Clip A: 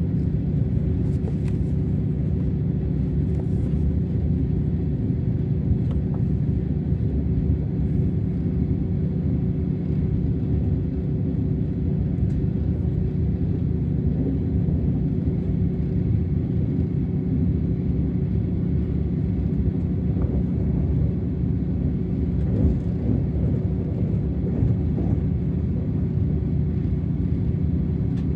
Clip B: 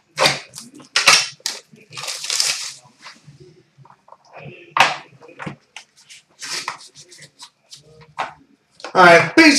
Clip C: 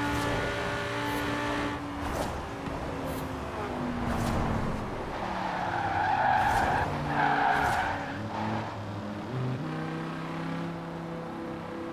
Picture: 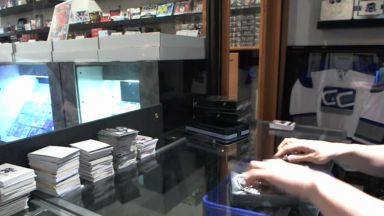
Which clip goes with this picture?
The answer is B